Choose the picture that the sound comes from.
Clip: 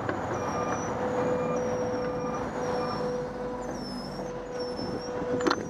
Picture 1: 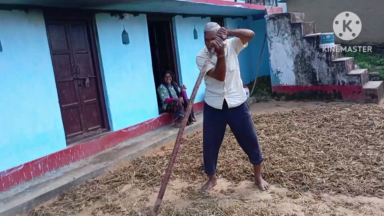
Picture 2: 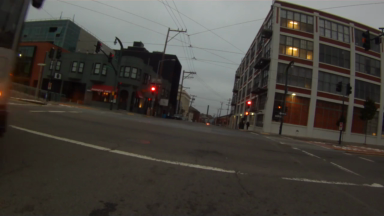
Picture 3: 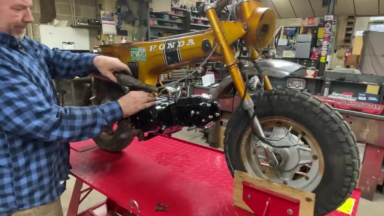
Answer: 2